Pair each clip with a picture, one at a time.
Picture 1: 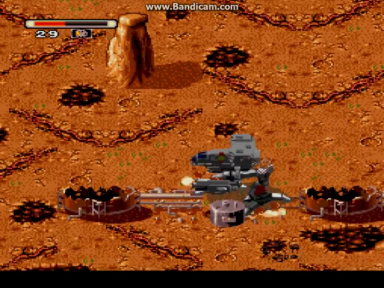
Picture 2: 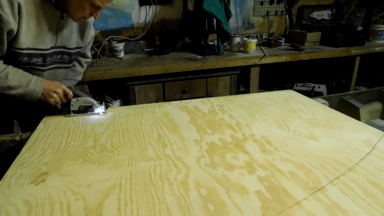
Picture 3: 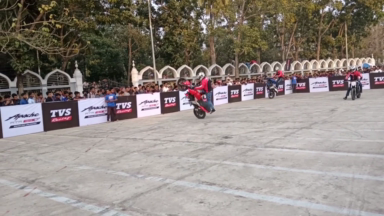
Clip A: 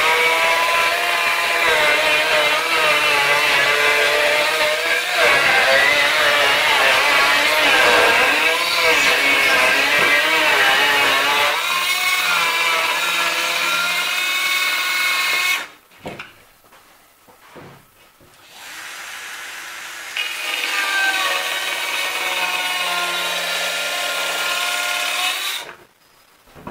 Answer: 2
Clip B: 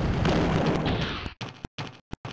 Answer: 1